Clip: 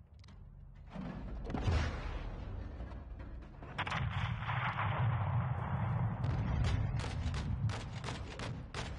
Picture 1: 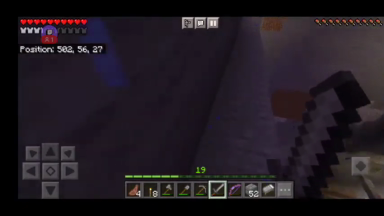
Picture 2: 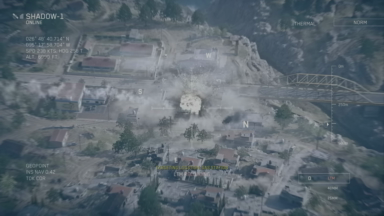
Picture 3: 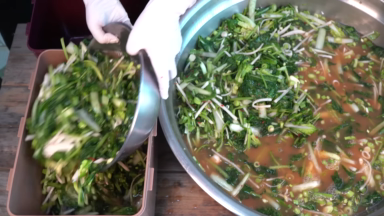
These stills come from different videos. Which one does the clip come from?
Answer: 2